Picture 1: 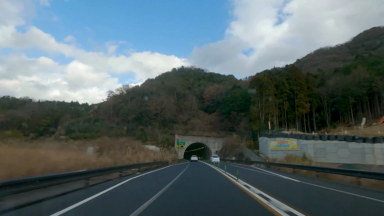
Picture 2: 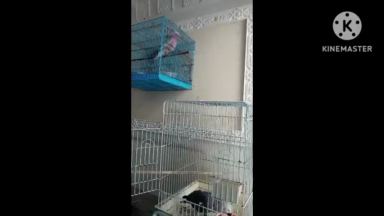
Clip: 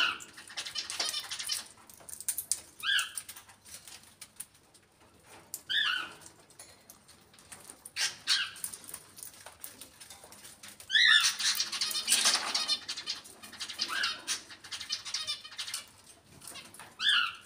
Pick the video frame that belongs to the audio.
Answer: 2